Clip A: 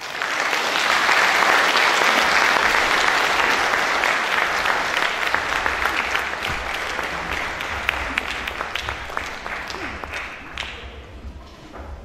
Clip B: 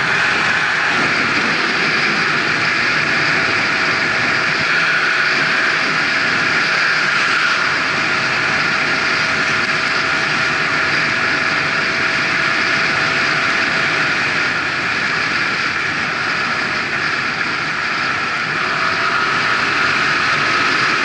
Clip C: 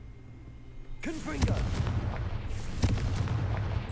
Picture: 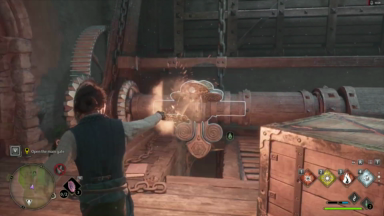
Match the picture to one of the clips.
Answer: C